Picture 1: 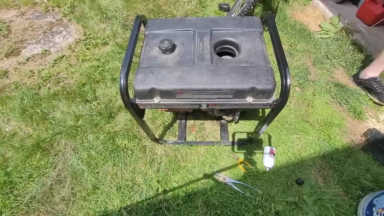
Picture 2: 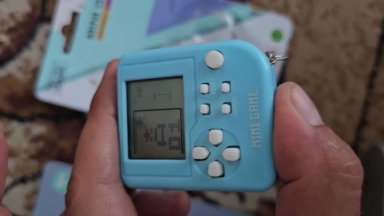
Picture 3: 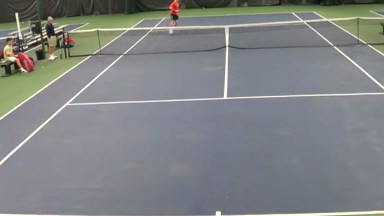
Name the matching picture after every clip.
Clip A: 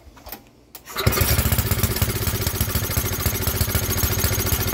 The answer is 1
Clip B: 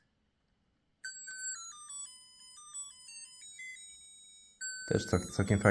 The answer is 2